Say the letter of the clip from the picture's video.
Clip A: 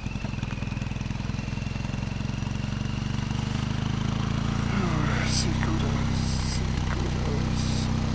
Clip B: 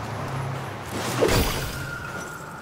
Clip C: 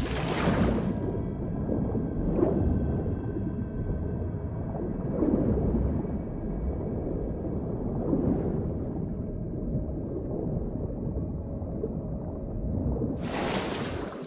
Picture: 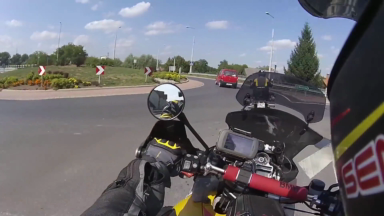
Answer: A